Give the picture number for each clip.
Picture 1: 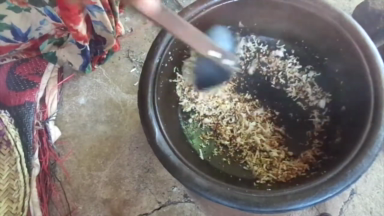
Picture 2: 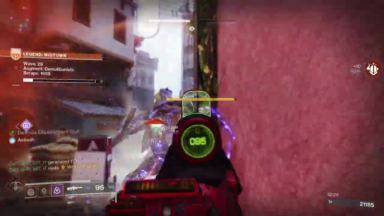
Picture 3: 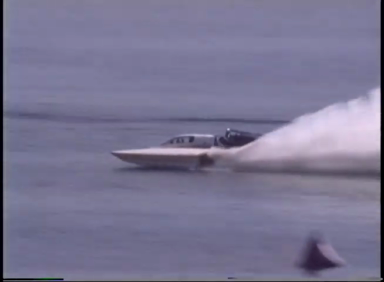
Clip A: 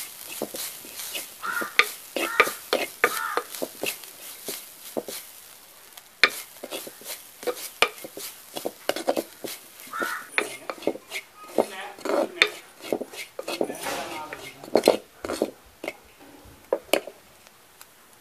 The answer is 1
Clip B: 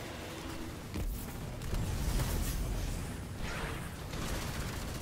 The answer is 2